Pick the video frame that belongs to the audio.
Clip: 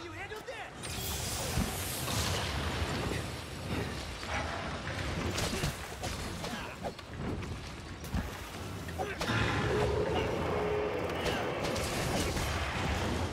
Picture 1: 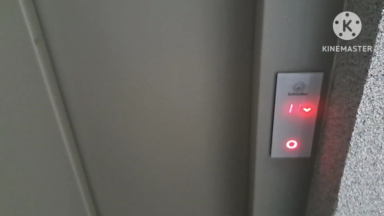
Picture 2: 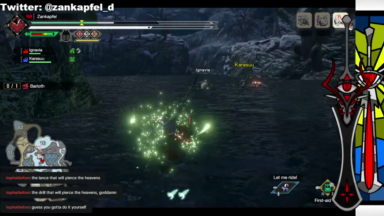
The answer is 2